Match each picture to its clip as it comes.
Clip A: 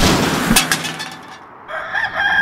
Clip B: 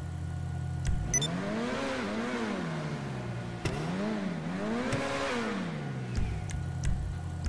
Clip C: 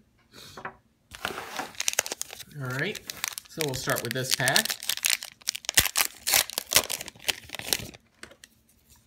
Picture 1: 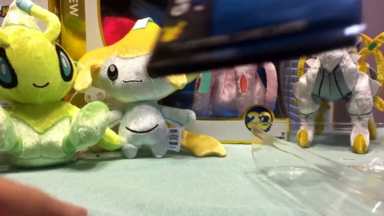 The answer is C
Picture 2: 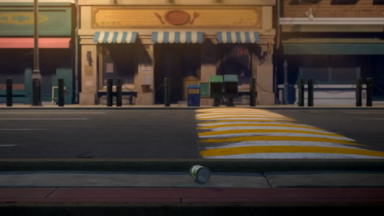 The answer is A